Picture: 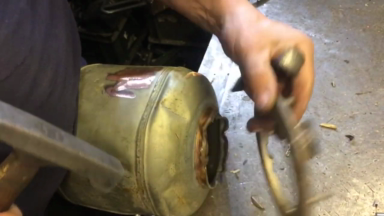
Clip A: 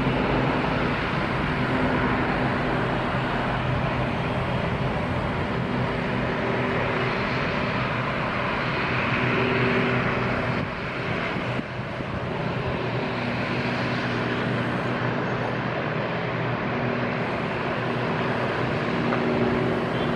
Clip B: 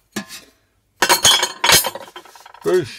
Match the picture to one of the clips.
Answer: B